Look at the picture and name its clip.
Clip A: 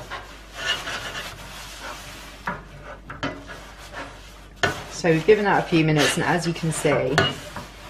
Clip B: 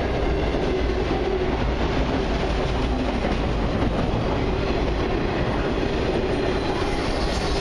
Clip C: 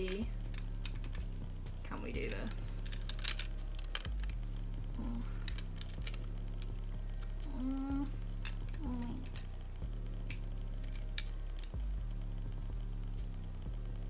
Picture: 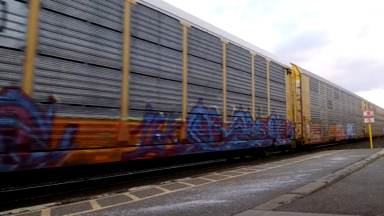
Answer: B